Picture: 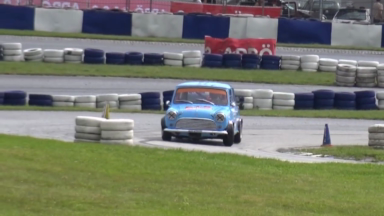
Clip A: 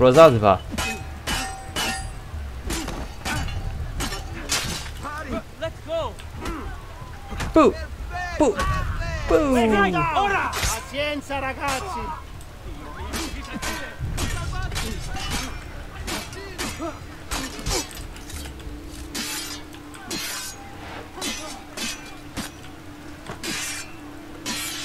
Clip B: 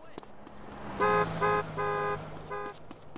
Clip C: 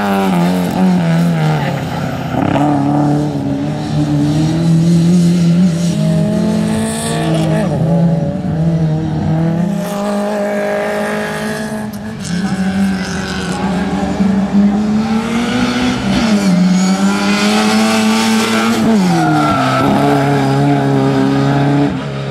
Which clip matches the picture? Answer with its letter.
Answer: C